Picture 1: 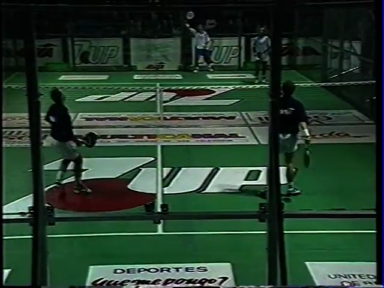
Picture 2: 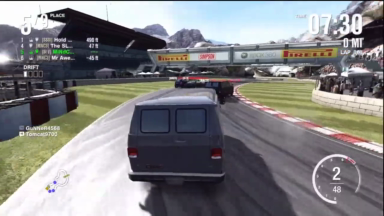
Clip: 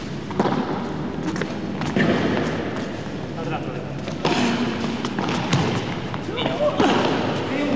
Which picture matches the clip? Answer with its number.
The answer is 1